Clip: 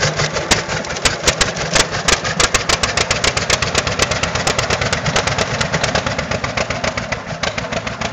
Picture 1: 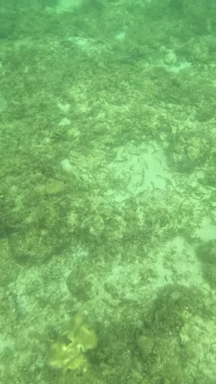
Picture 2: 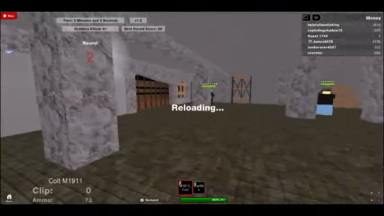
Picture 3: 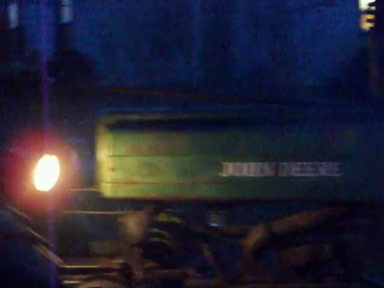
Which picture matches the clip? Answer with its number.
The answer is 3